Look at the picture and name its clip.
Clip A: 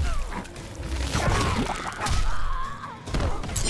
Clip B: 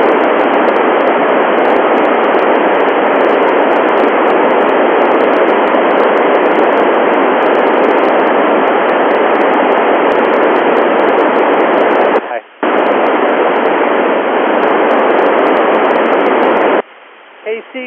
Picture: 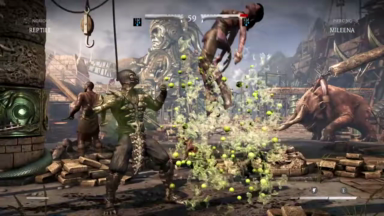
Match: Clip A